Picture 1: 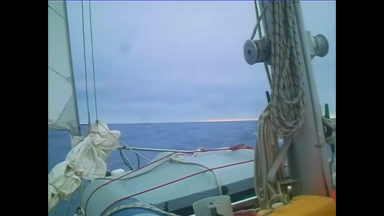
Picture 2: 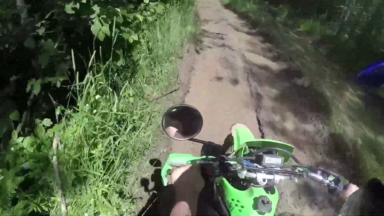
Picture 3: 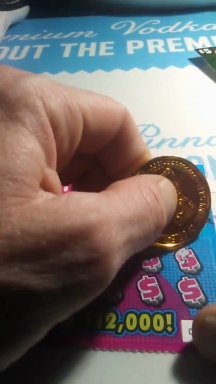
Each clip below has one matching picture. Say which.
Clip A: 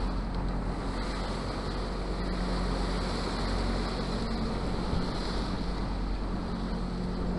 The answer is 1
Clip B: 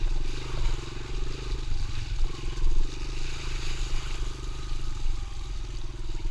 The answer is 2